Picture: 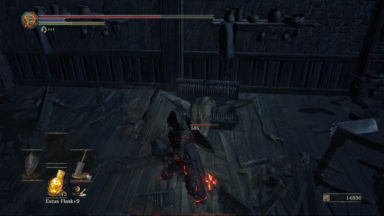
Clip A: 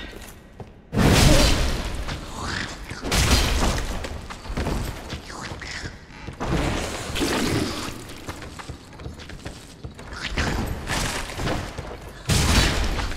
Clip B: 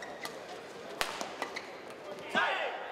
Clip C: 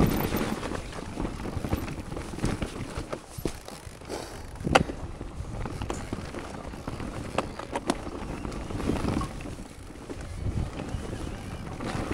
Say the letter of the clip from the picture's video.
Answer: A